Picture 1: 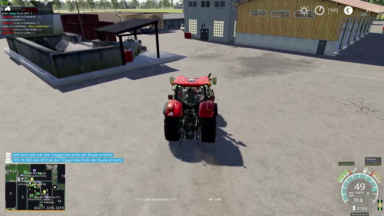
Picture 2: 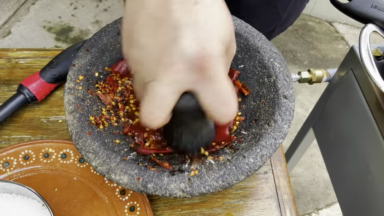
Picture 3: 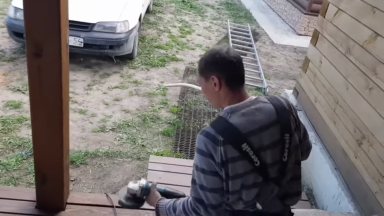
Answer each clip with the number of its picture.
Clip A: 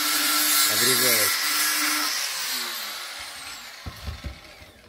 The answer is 3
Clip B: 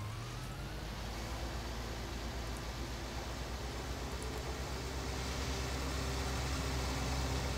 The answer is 1